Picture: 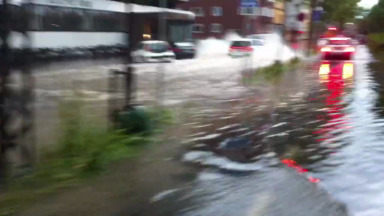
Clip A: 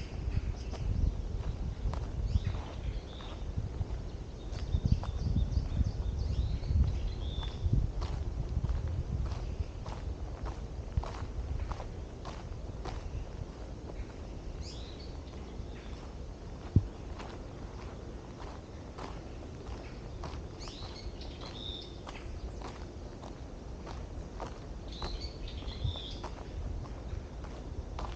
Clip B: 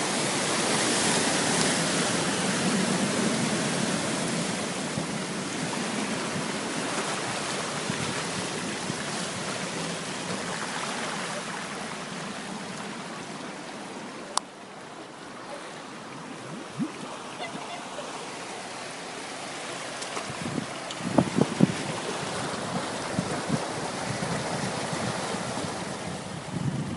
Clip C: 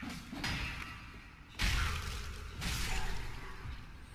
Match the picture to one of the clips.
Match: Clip B